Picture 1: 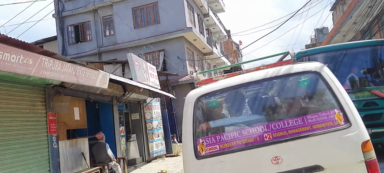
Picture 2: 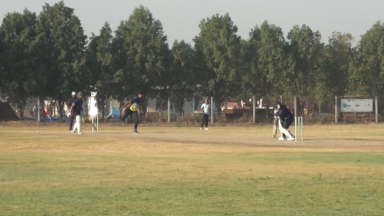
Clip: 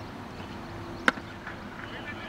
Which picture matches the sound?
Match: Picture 2